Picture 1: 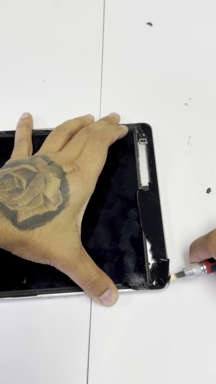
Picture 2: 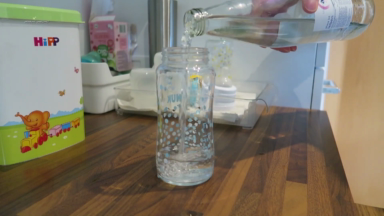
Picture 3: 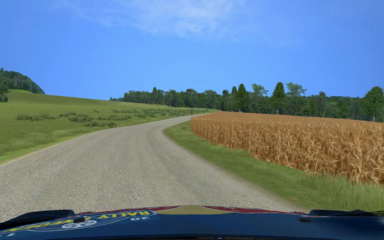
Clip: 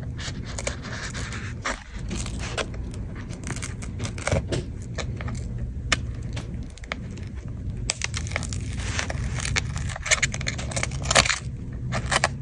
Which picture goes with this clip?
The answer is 1